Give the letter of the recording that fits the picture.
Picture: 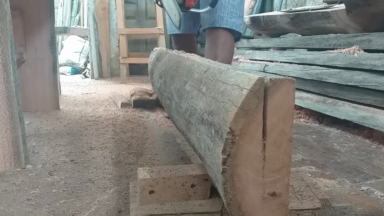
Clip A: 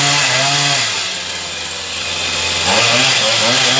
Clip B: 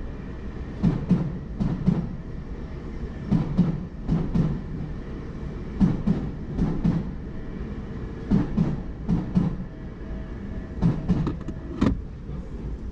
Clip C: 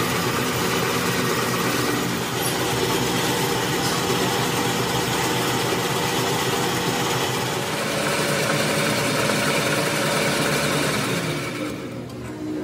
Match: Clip A